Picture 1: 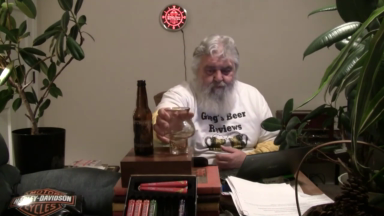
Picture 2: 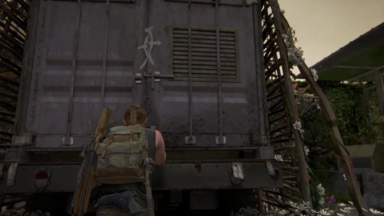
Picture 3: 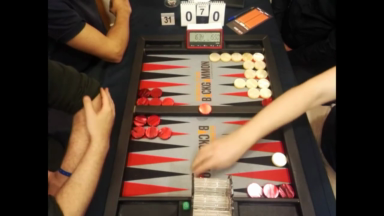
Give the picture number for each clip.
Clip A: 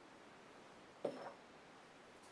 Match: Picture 1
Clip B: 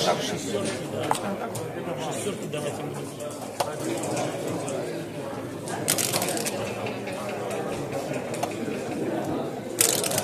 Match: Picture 3